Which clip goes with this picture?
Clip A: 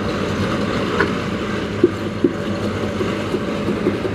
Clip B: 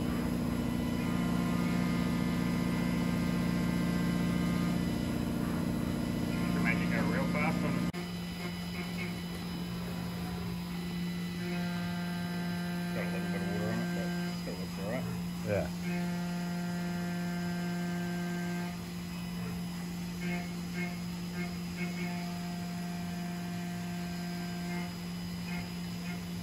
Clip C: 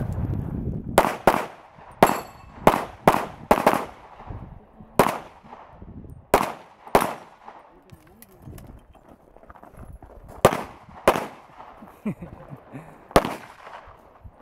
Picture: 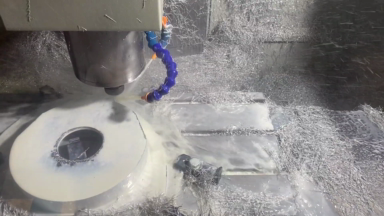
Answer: B